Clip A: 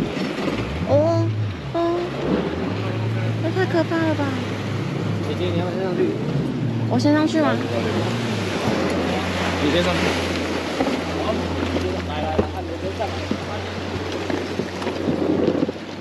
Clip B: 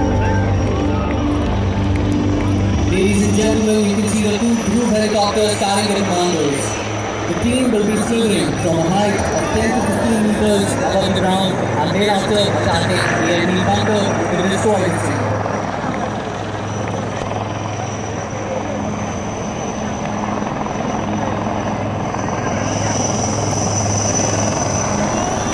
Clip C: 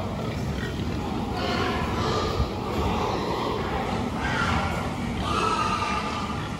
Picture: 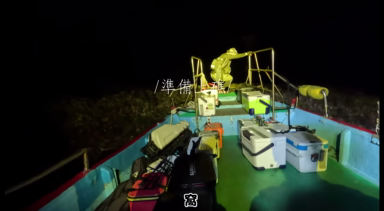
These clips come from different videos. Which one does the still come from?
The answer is A